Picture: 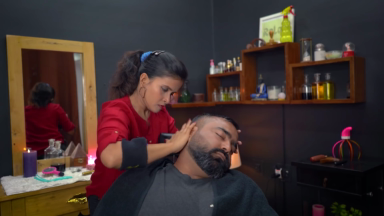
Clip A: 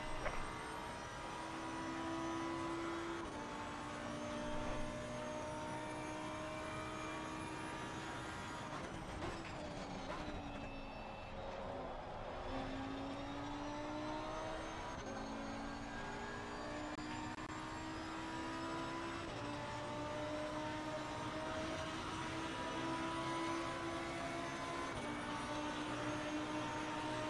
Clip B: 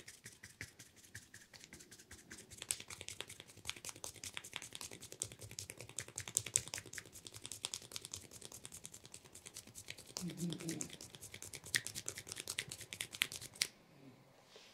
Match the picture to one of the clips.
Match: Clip B